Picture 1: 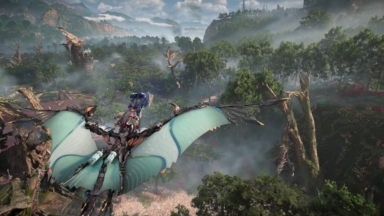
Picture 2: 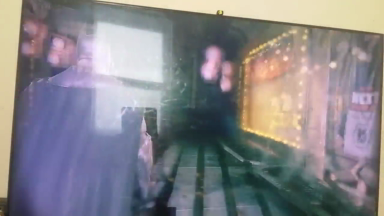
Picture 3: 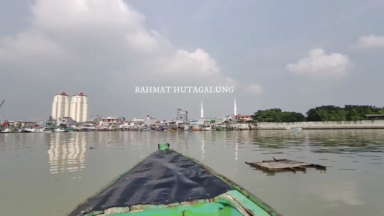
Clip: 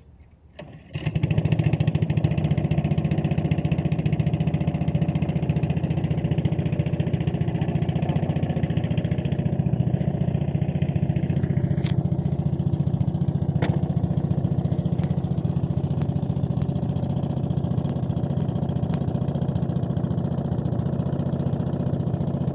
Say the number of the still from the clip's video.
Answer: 3